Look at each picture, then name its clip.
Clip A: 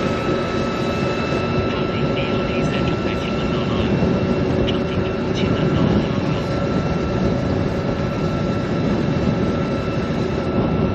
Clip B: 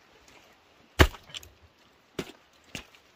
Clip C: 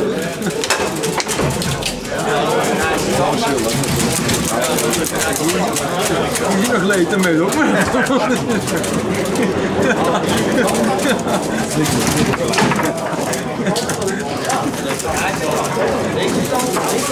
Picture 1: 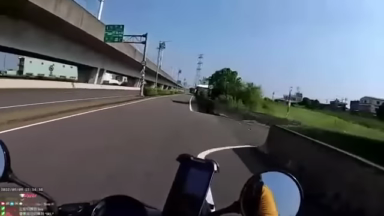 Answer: A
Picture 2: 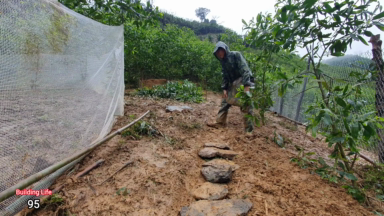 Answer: B